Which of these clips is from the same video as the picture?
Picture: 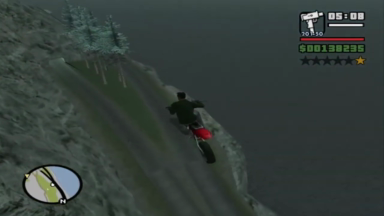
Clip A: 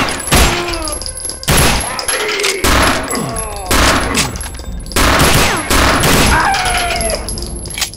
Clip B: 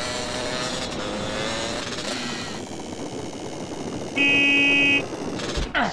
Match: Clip B